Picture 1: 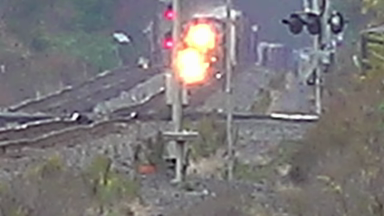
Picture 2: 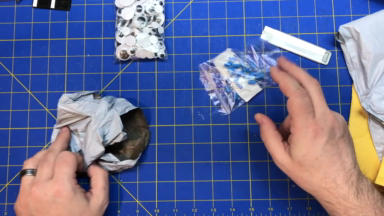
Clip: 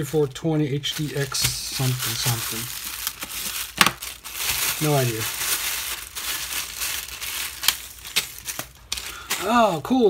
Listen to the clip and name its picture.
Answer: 2